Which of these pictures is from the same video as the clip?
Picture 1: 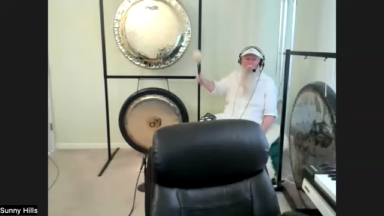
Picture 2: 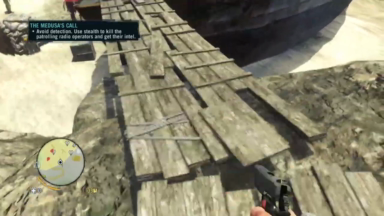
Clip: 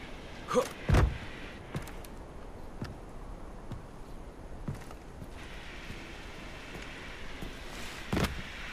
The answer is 2